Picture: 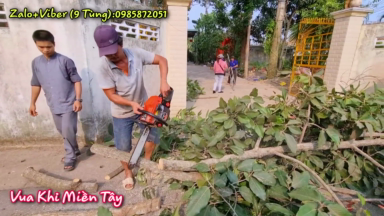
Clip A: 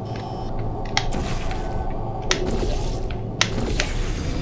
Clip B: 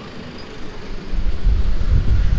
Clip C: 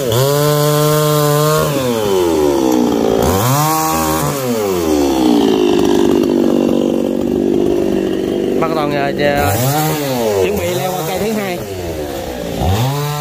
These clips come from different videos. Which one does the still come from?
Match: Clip C